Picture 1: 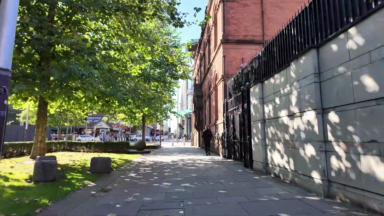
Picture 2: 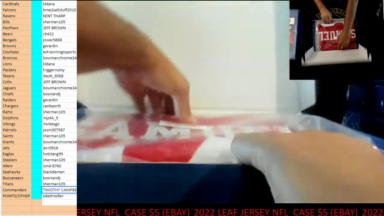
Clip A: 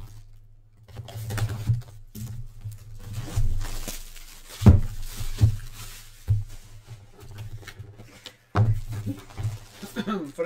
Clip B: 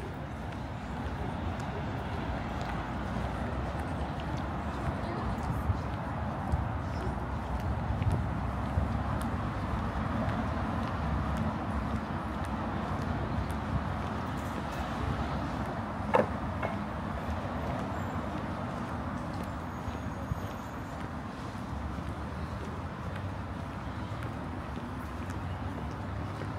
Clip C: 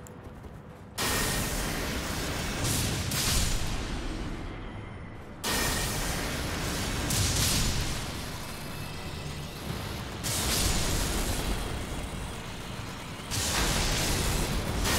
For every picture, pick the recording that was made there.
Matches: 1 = B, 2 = A